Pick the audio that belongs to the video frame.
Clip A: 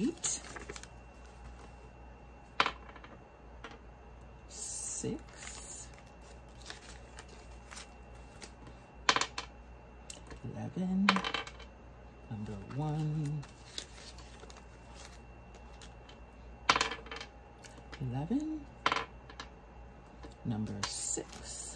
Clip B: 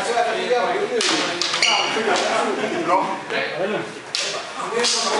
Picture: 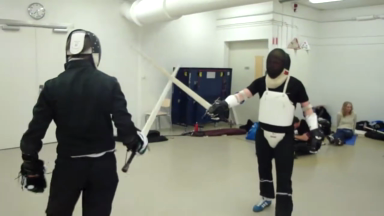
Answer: B